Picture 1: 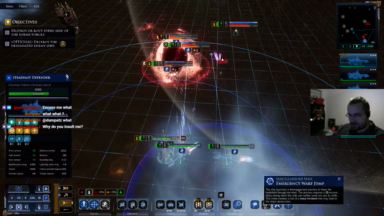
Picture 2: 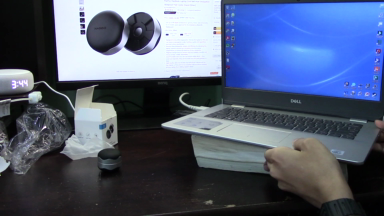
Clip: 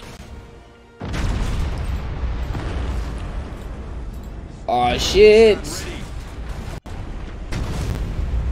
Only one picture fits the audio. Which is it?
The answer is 1